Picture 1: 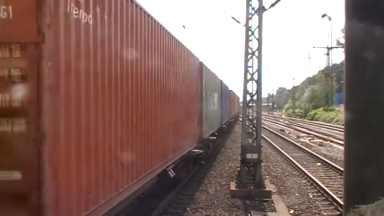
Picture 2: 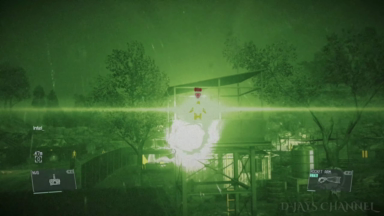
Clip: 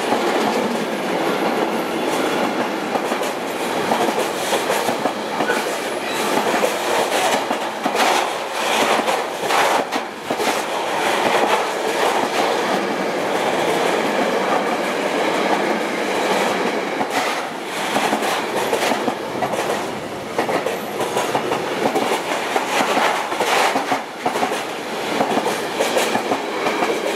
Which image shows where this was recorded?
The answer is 1